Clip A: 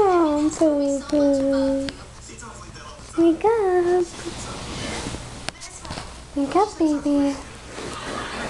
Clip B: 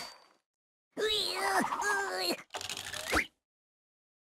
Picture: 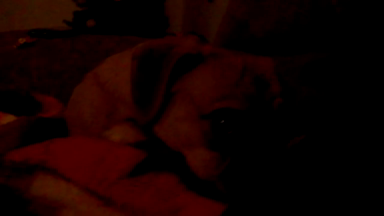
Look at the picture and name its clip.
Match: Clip A